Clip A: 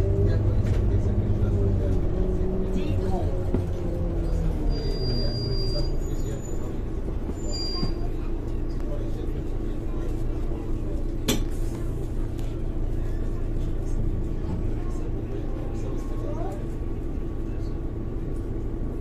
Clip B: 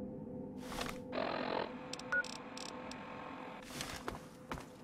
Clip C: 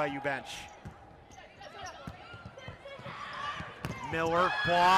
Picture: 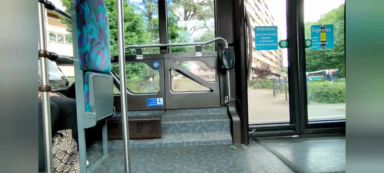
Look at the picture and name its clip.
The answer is A